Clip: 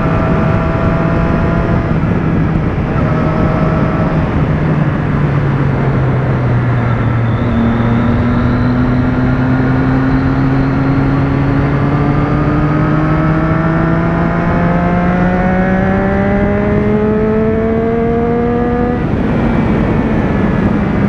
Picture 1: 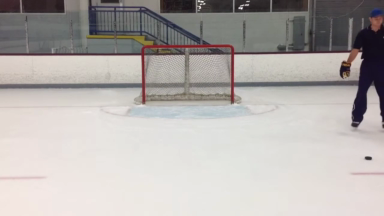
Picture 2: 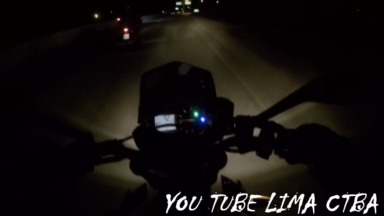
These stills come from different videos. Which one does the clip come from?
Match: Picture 2